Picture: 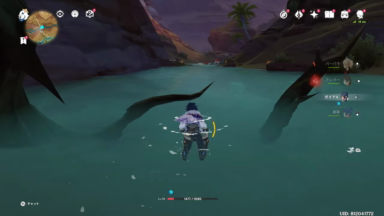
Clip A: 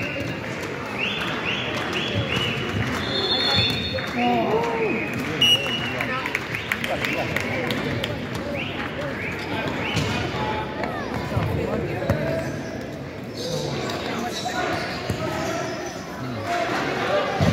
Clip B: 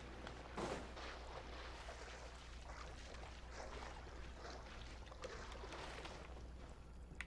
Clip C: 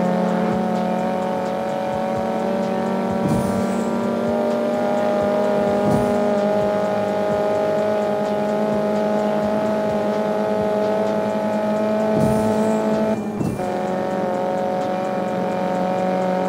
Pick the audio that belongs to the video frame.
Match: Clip B